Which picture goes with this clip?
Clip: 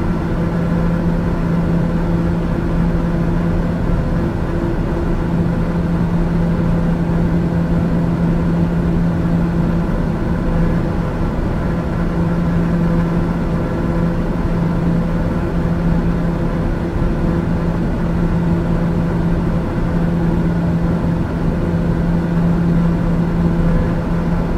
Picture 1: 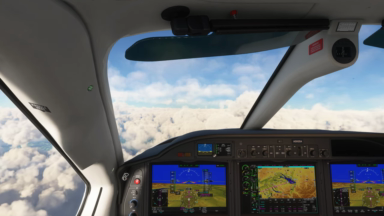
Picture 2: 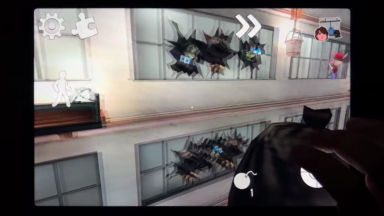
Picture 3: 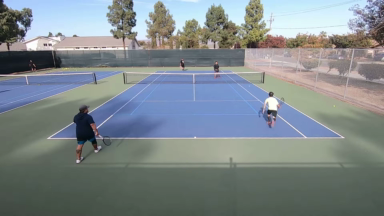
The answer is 1